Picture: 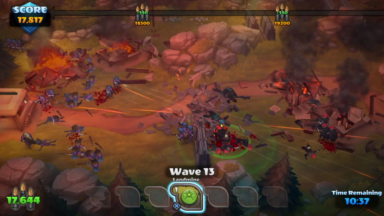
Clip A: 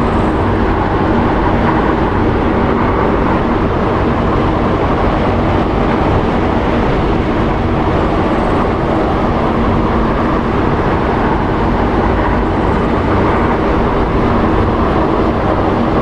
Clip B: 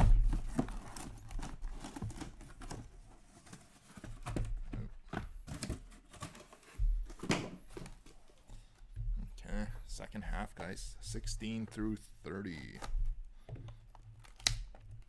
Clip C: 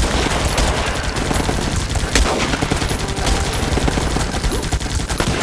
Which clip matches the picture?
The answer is C